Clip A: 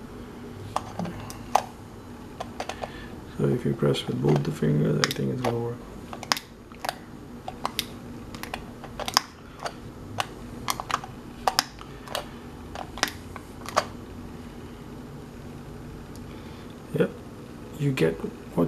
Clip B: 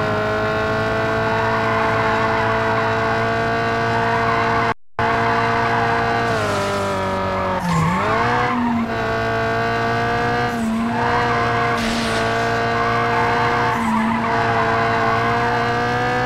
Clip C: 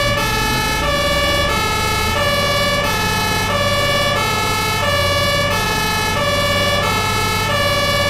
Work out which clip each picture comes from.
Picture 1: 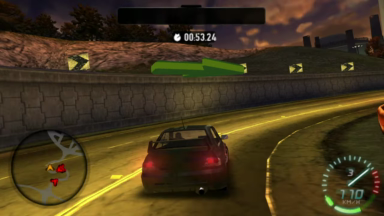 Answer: B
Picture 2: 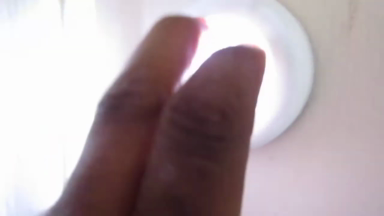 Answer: A